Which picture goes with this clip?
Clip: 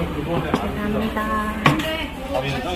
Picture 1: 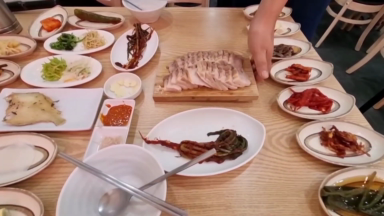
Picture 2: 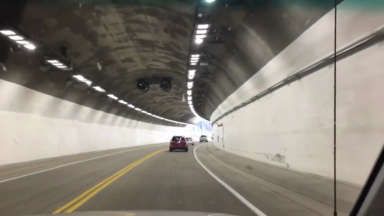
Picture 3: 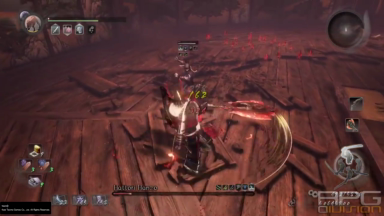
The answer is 1